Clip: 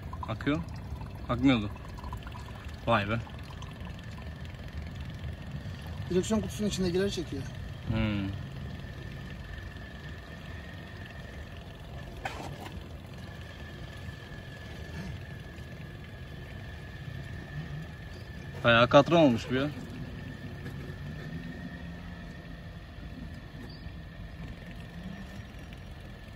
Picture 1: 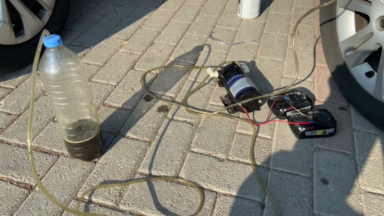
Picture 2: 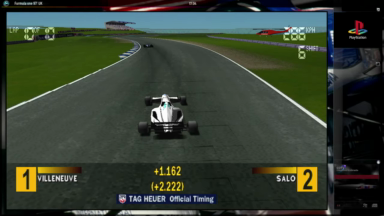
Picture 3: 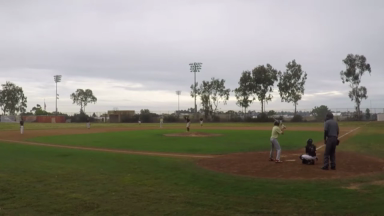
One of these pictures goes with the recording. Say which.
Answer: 1